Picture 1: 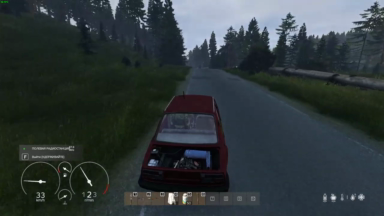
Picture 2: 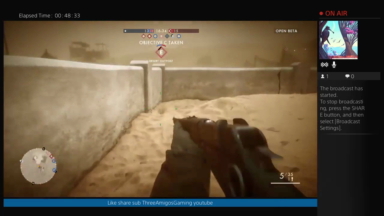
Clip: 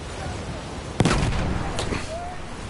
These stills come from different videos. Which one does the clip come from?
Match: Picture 2